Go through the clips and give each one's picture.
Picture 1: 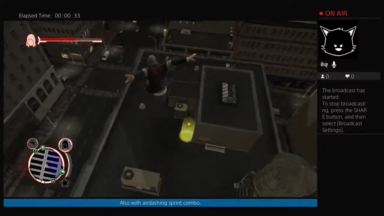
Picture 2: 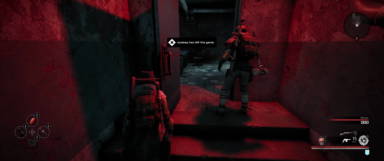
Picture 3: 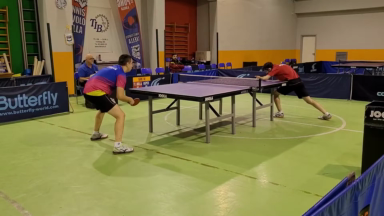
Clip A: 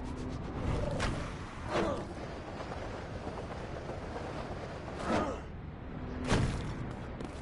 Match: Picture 1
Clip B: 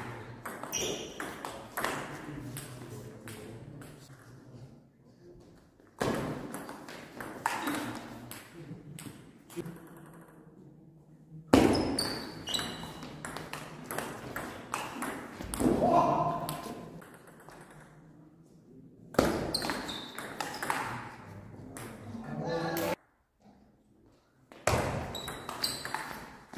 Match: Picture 3